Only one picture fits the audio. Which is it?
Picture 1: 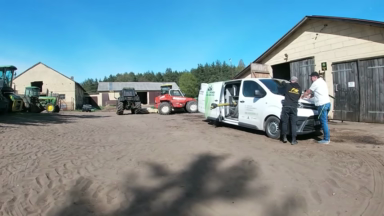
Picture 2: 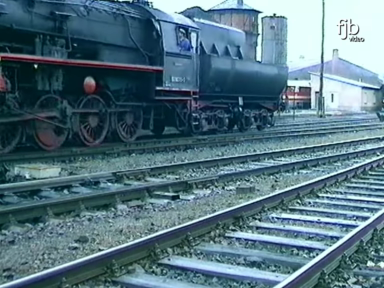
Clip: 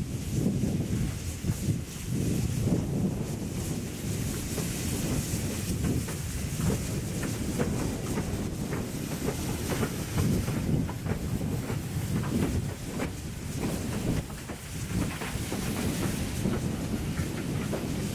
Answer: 2